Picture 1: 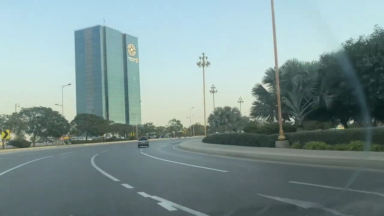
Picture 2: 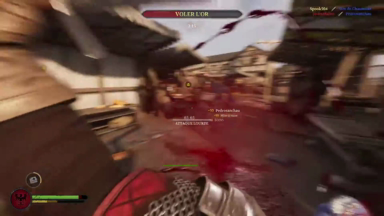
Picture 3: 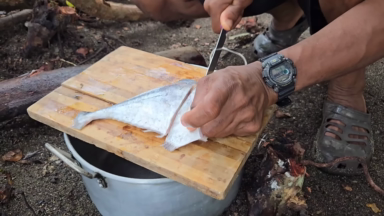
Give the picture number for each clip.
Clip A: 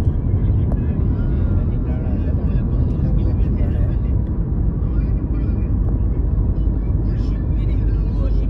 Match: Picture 1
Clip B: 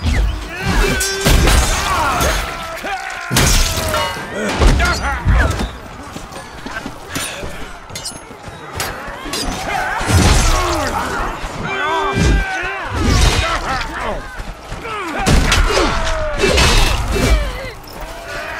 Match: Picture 2